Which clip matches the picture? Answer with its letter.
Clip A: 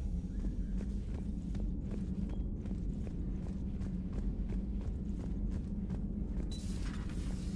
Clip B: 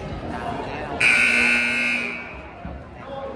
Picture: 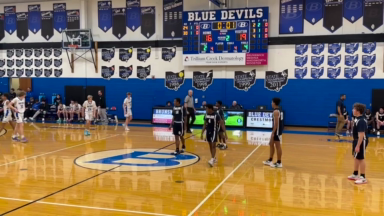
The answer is B